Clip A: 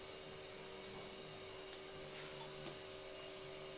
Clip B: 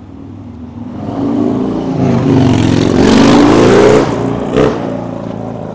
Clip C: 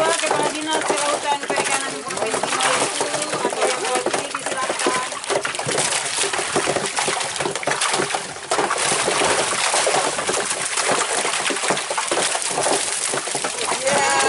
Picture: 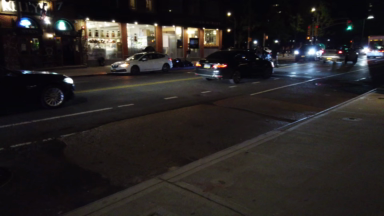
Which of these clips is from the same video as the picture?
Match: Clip B